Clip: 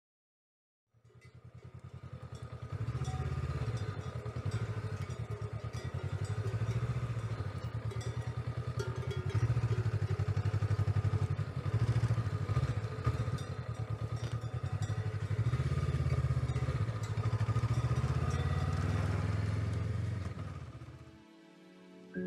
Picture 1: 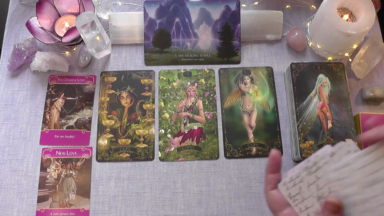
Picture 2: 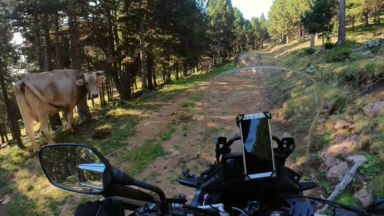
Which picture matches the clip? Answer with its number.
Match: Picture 2